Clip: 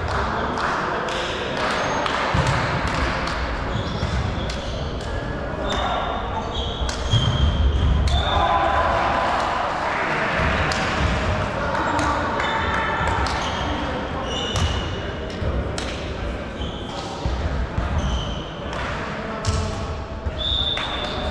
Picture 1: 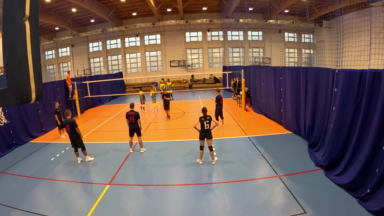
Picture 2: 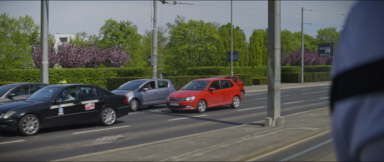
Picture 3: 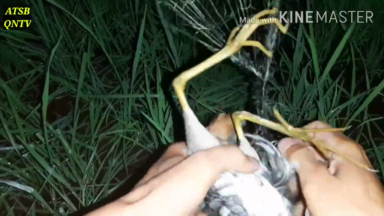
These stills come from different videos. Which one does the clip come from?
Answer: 1